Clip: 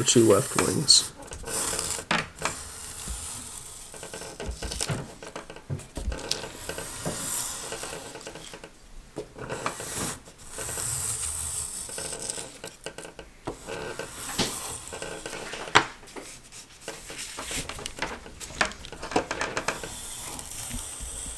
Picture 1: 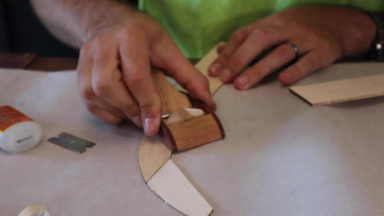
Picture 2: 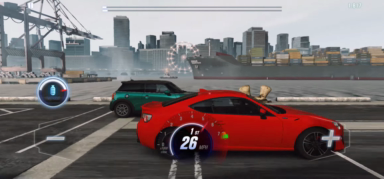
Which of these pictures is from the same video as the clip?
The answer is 1